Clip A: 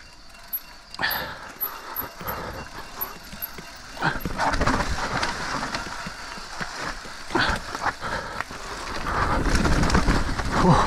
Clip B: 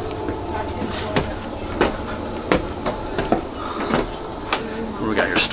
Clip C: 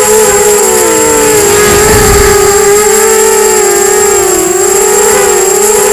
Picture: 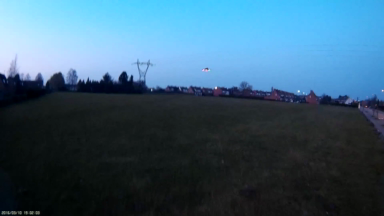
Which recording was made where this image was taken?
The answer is C